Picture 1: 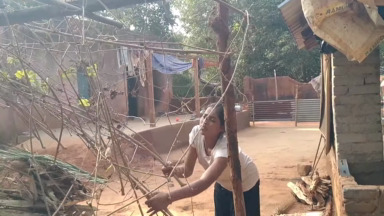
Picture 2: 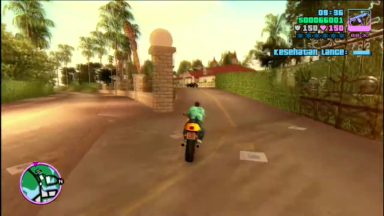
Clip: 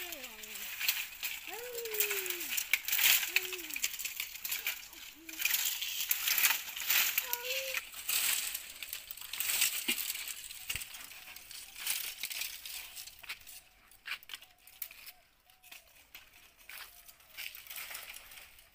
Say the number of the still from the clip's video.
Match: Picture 1